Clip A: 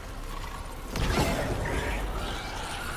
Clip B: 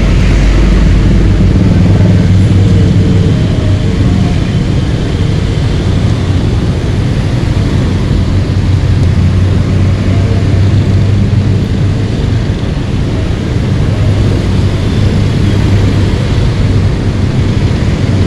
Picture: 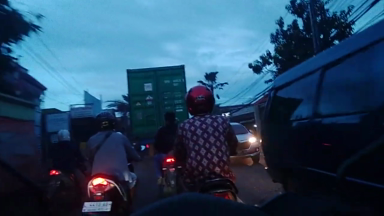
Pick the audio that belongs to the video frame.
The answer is B